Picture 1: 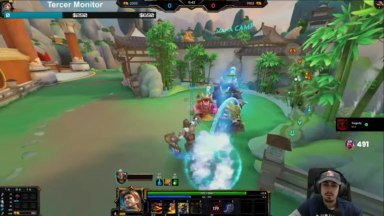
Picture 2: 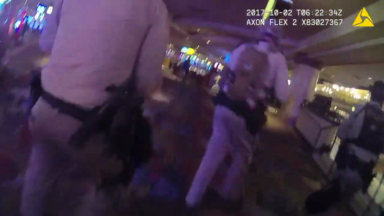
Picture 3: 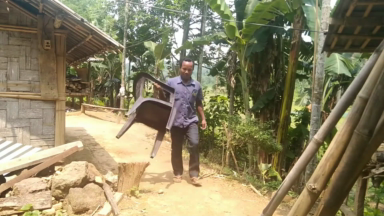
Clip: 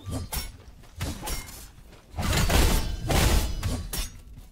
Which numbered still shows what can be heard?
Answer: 1